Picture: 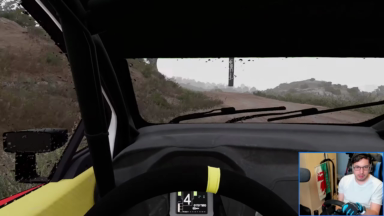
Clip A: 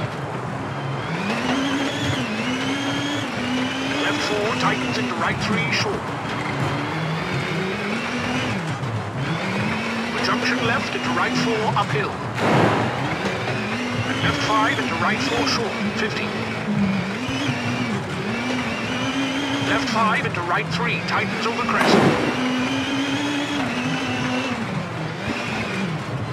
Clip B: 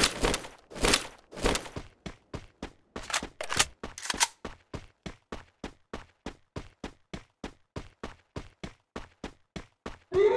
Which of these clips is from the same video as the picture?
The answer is A